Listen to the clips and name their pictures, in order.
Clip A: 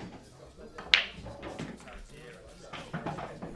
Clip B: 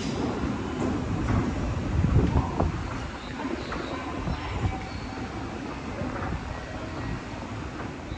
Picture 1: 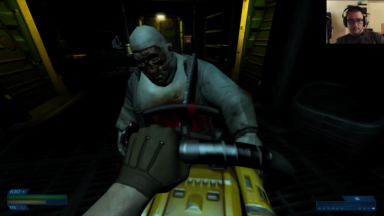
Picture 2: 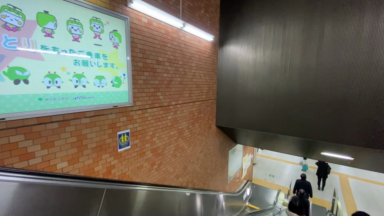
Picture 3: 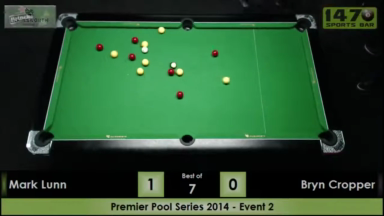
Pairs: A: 3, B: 2